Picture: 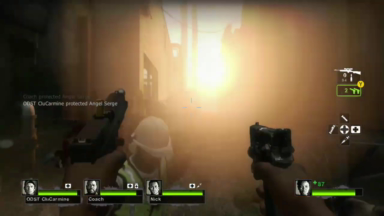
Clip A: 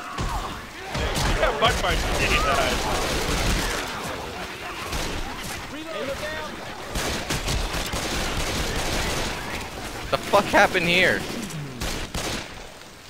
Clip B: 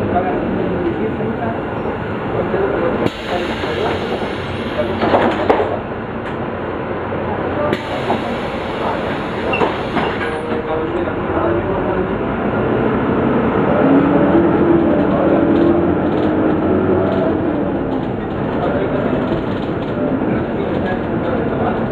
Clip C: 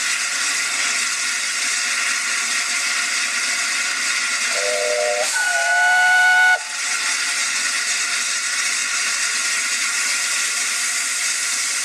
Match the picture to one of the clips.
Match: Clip A